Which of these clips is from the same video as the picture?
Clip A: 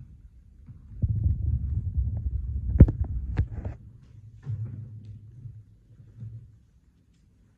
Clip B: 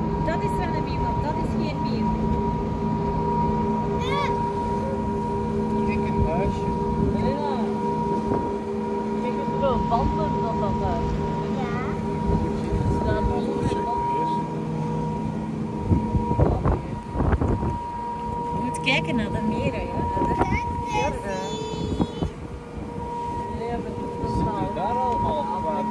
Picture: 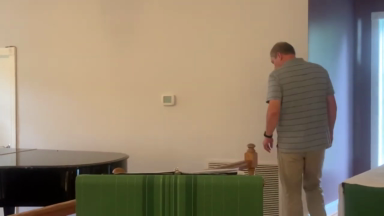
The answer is A